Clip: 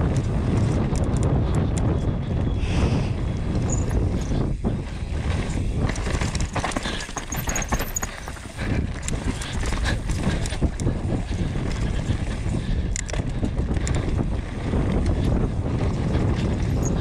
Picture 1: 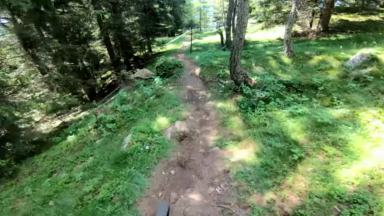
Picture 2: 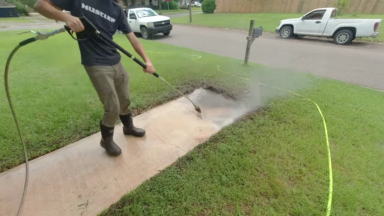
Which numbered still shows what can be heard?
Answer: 1